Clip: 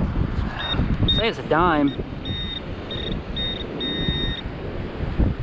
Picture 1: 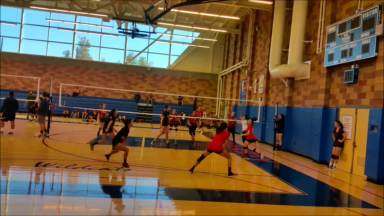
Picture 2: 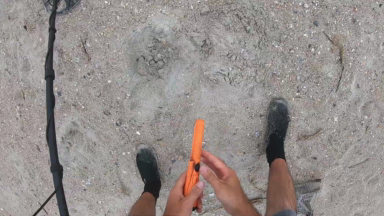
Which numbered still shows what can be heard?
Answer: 2